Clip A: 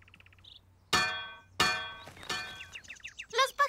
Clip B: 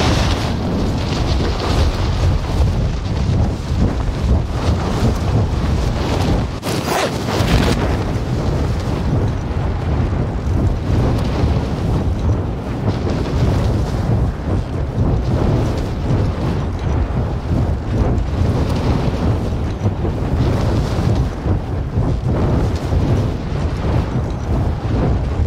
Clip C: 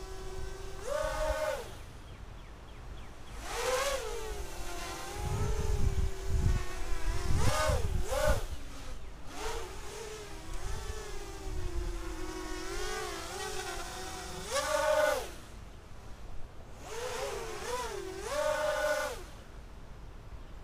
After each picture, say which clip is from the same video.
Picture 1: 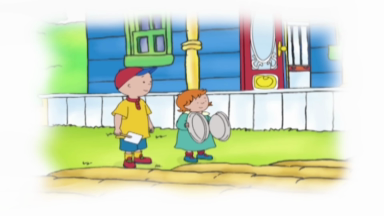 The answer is A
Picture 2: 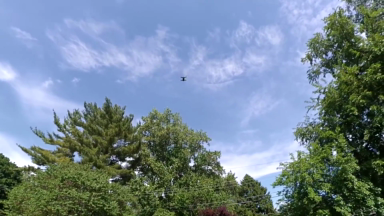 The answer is C